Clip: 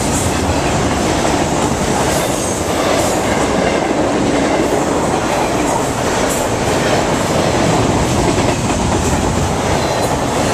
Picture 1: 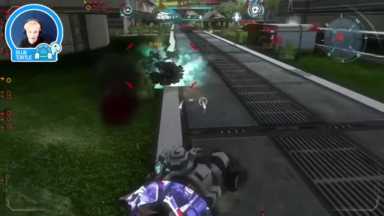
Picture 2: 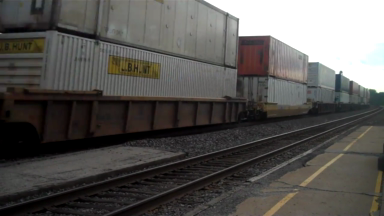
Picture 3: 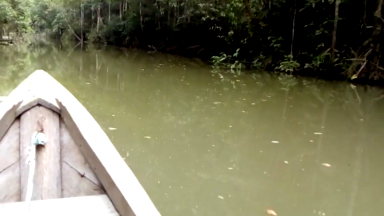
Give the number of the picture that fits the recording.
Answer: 2